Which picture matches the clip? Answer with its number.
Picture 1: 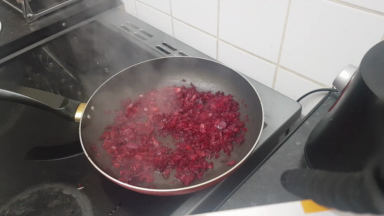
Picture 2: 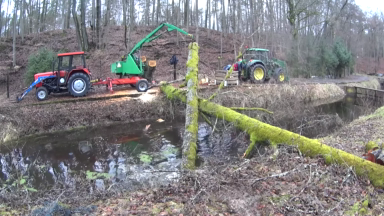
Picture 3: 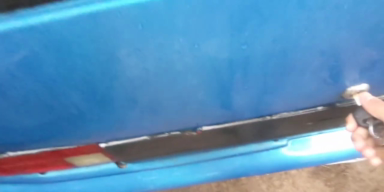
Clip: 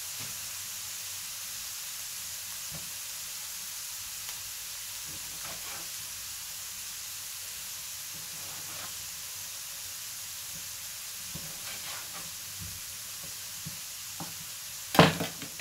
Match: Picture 1